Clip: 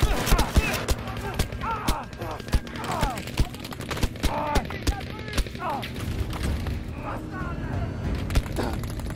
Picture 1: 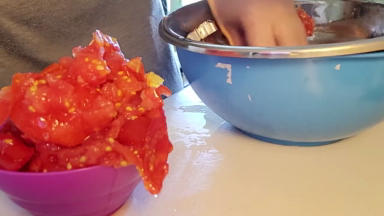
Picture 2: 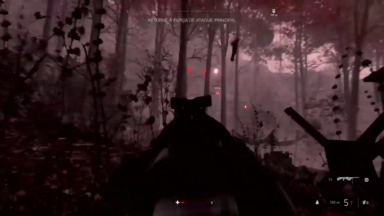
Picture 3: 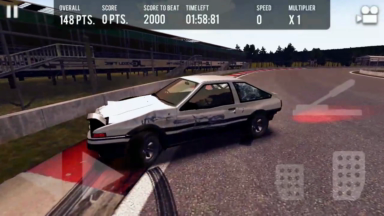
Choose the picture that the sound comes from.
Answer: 2